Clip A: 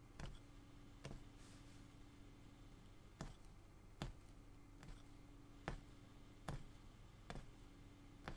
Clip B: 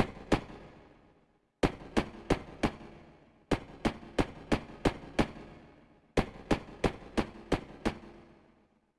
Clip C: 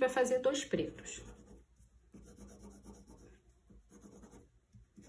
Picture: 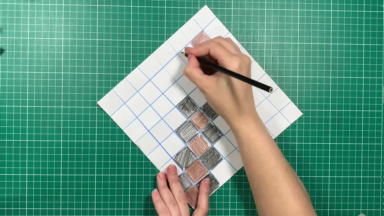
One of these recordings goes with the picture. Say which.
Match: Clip C